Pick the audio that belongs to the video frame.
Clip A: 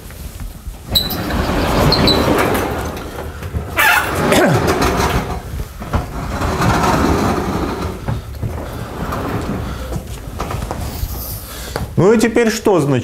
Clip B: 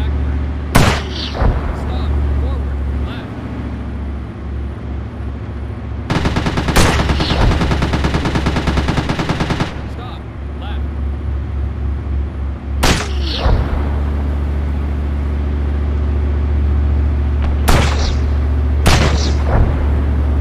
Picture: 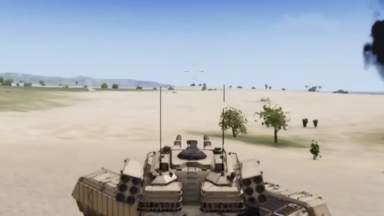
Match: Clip B